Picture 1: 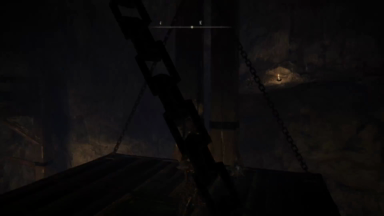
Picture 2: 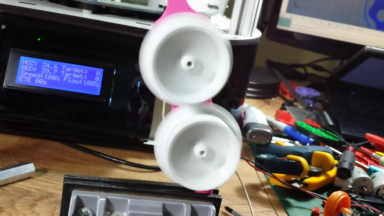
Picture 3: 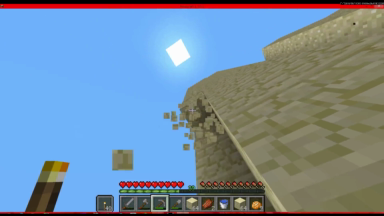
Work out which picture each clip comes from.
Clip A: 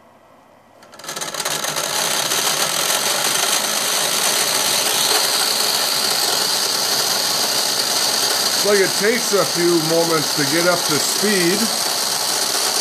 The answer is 2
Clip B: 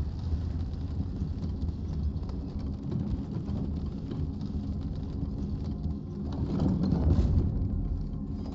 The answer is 1